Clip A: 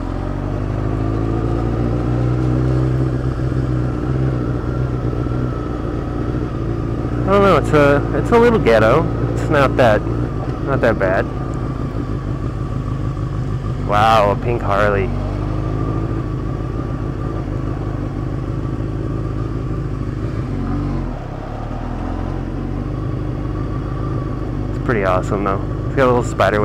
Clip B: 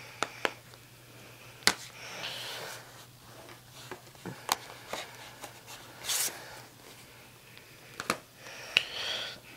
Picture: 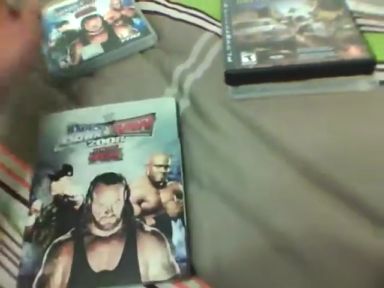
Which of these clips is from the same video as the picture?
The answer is B